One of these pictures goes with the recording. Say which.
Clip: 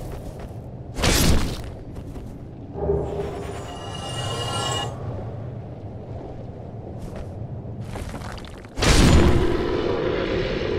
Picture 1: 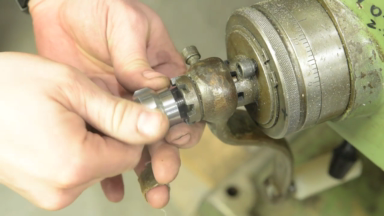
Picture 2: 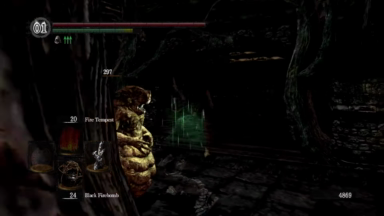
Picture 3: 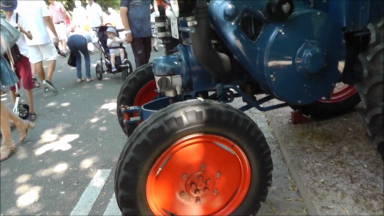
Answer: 2